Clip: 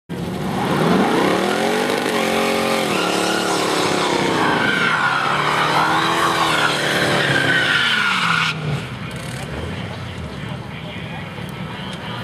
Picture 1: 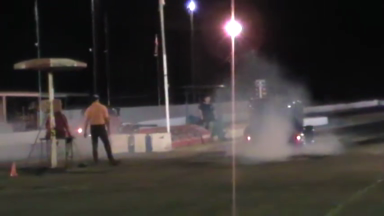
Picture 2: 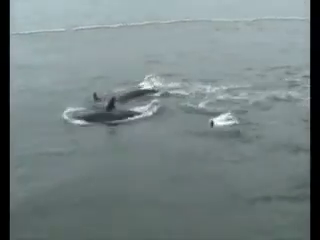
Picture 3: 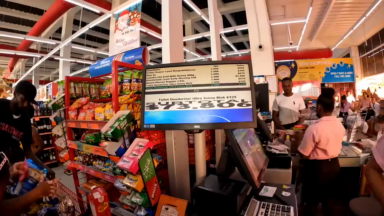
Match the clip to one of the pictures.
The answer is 1